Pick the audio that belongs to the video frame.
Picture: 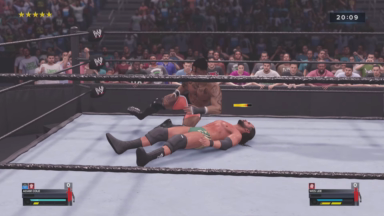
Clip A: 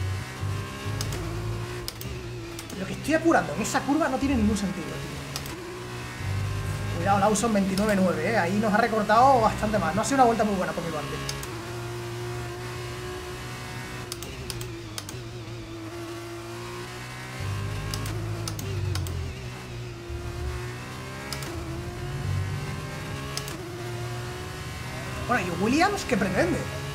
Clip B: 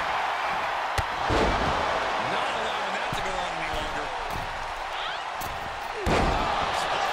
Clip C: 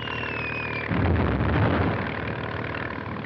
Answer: B